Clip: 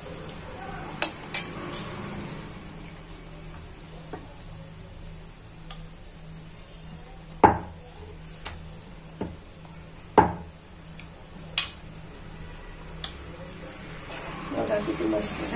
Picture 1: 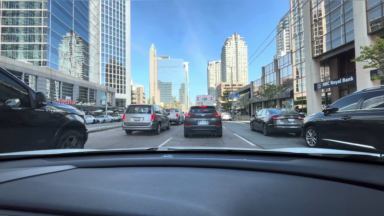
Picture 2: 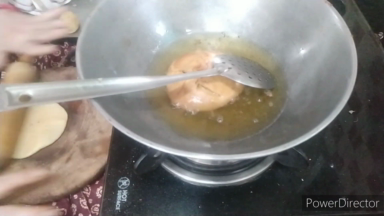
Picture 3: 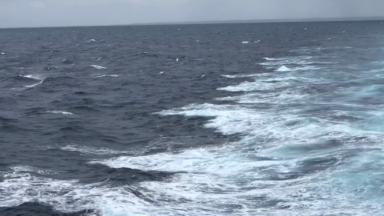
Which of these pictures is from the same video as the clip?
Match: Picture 2